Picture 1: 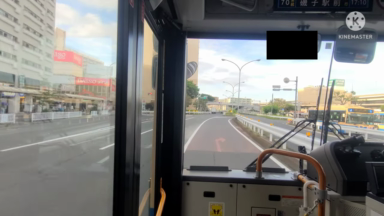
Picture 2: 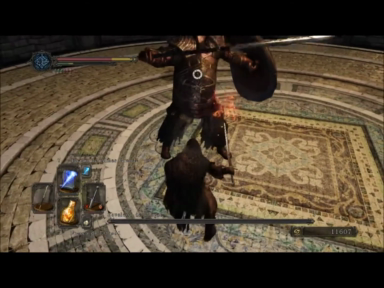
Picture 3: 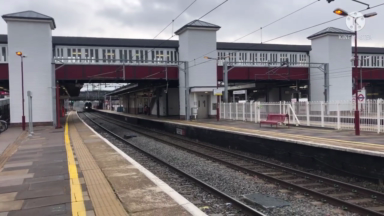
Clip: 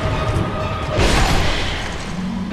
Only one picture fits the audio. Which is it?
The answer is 2